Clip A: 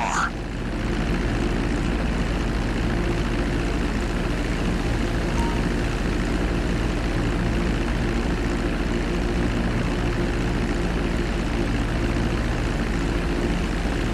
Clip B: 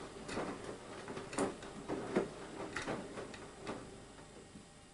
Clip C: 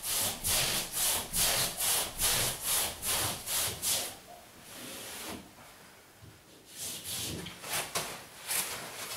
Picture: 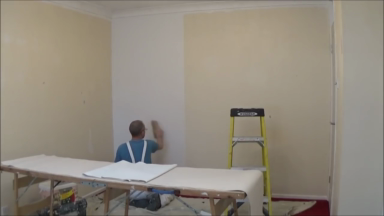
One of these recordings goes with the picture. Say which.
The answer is C